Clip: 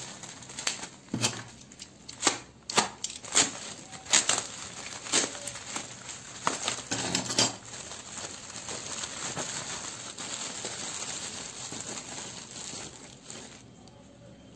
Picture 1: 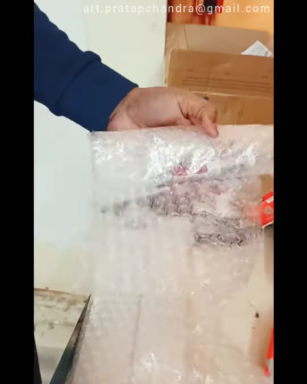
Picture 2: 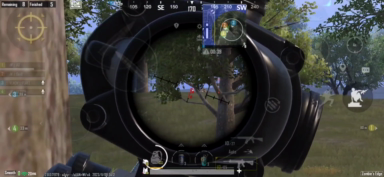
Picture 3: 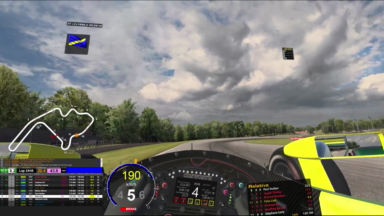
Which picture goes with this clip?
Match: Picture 1